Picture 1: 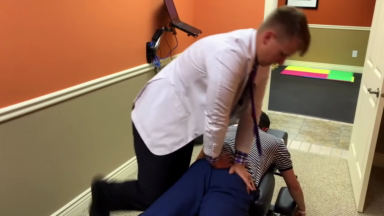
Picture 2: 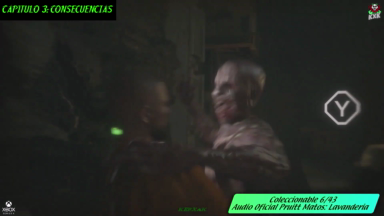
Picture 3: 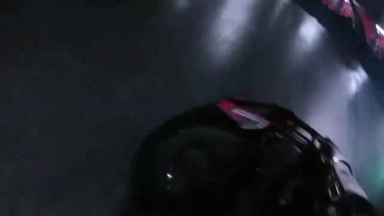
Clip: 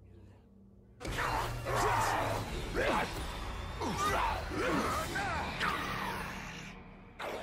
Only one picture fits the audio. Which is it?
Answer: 2